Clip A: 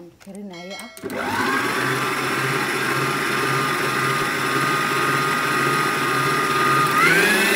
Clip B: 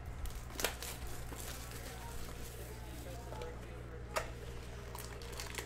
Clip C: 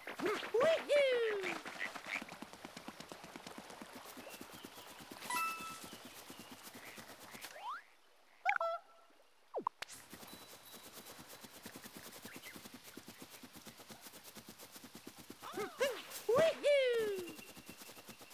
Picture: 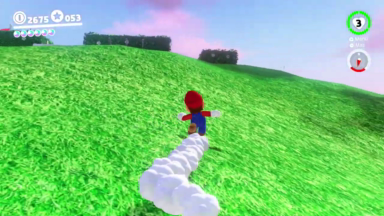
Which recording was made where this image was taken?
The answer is C